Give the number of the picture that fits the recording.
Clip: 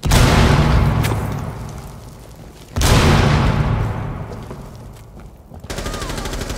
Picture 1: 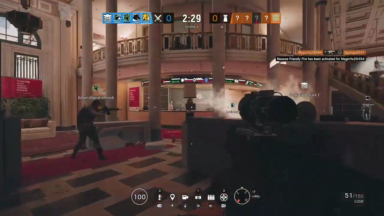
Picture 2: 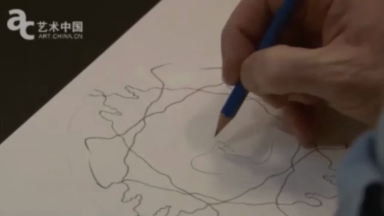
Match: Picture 1